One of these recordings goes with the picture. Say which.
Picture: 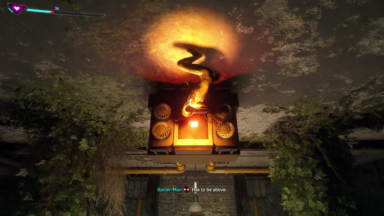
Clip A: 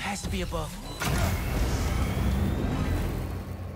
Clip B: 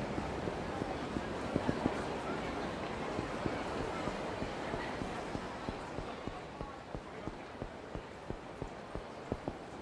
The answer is A